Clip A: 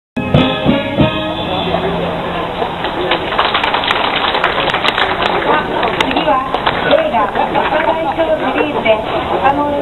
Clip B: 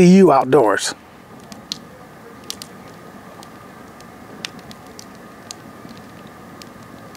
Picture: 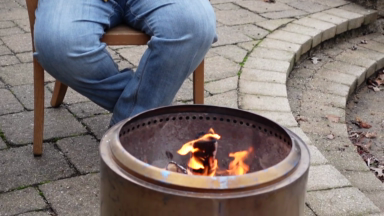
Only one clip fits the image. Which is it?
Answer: B